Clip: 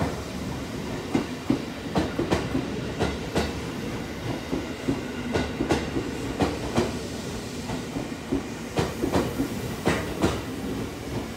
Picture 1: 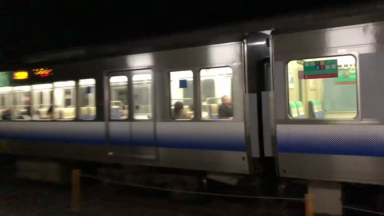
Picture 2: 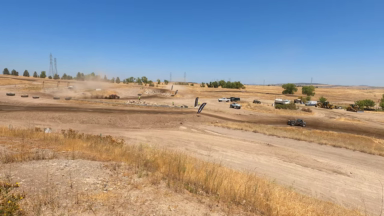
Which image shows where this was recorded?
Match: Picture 1